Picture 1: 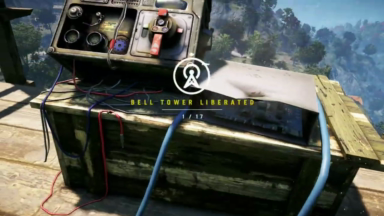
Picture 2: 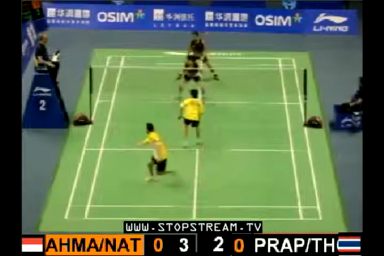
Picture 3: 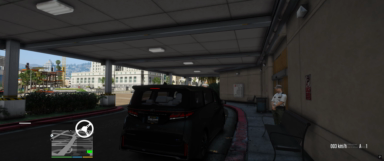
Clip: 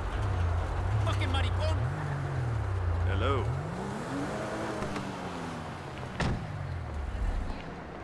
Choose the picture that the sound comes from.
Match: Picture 3